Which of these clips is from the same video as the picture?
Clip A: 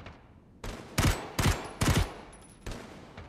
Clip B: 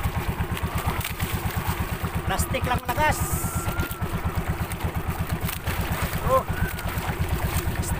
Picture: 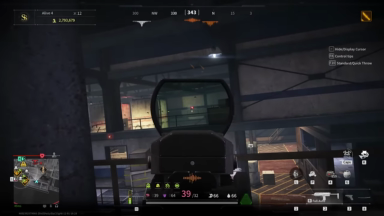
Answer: A